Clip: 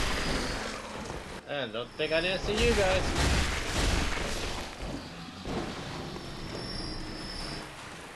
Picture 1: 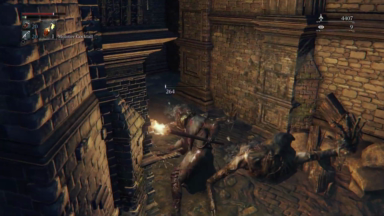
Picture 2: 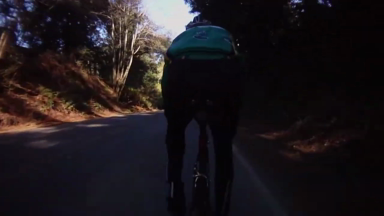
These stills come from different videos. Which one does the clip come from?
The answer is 1